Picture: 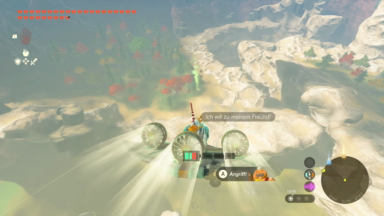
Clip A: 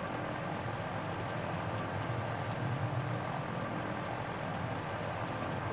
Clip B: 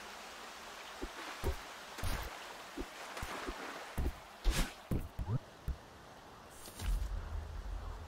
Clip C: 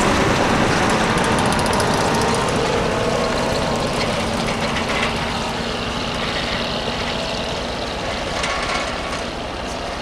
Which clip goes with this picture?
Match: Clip A